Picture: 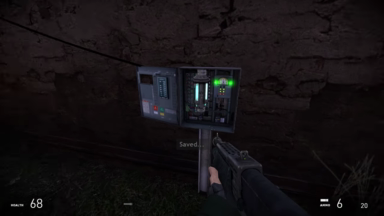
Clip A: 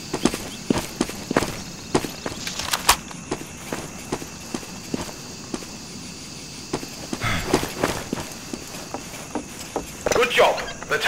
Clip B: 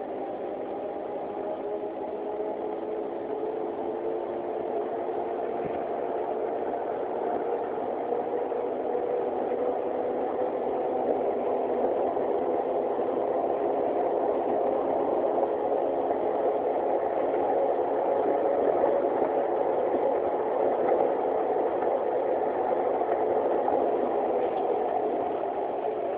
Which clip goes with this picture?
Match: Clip A